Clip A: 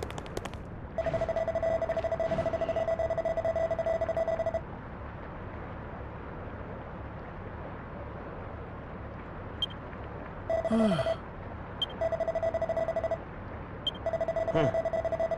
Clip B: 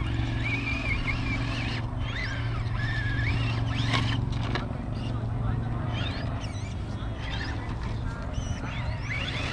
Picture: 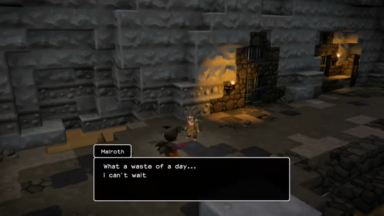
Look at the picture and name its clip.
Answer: A